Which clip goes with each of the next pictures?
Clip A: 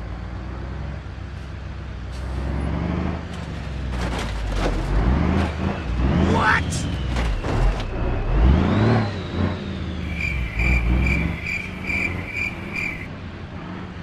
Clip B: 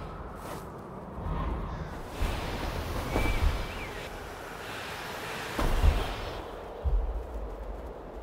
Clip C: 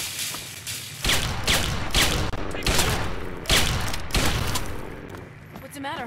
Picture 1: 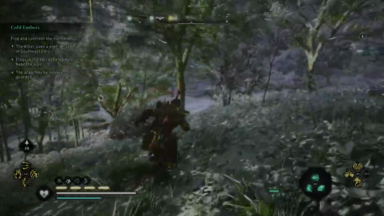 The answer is B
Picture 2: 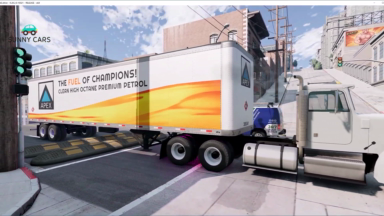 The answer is A